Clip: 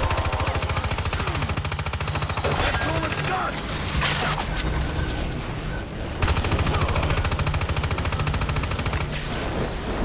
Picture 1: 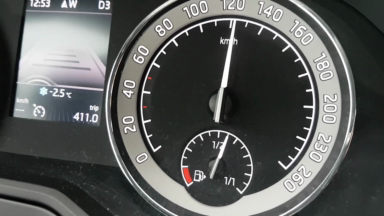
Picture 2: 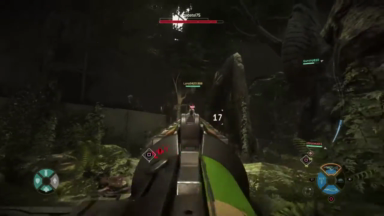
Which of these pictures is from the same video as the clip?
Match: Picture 2